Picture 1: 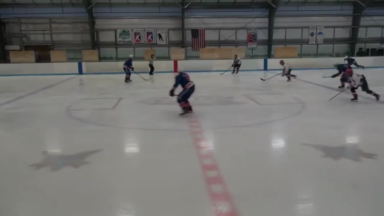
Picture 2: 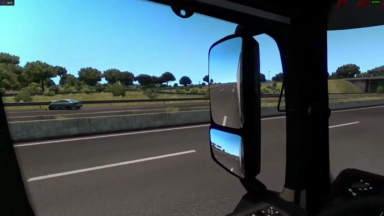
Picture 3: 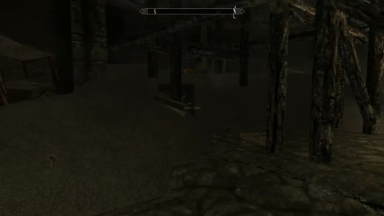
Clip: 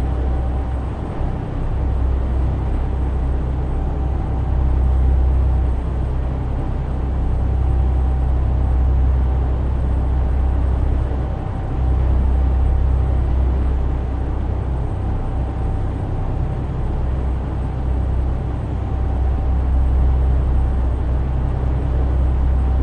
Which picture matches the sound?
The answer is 2